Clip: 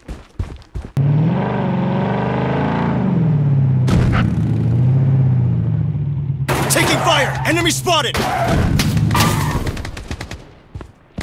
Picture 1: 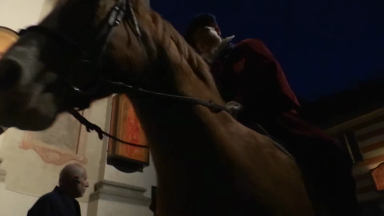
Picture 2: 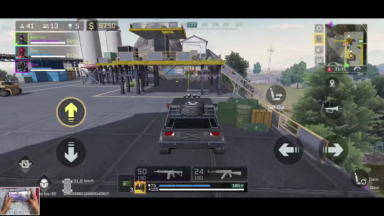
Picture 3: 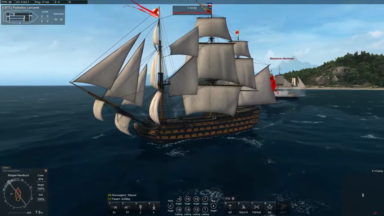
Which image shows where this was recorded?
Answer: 2